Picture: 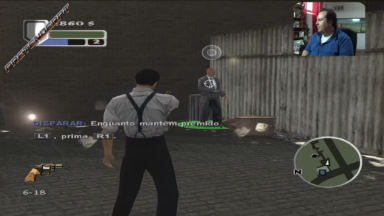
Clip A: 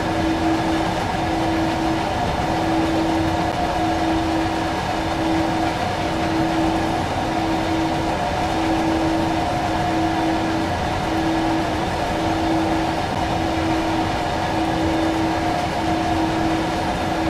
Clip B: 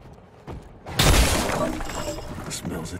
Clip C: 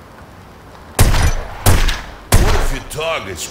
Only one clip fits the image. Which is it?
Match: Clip C